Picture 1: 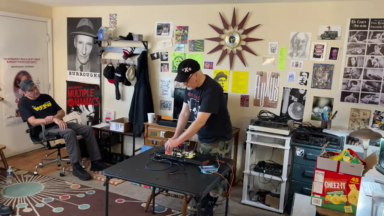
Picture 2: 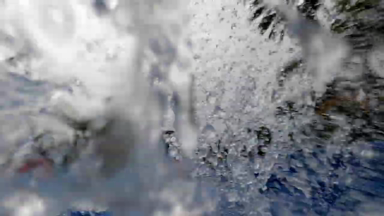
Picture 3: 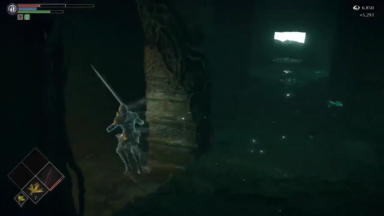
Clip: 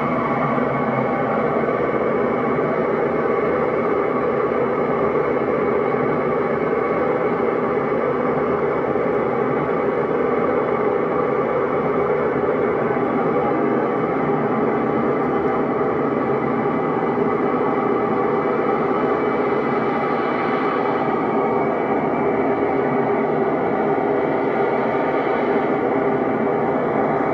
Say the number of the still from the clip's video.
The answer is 1